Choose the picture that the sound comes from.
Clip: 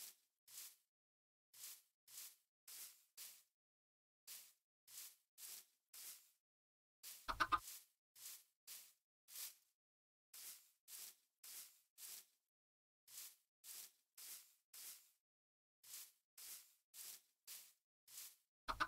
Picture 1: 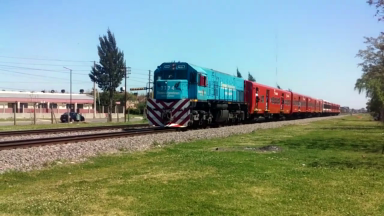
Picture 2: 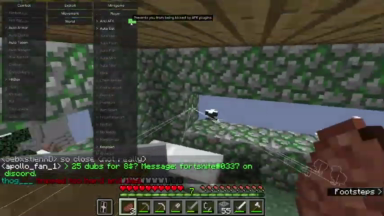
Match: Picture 2